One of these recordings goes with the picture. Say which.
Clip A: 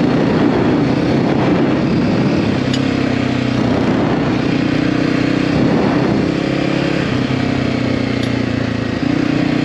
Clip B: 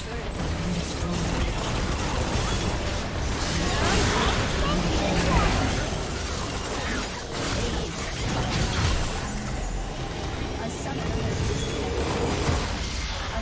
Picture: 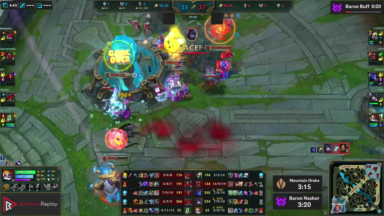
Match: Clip B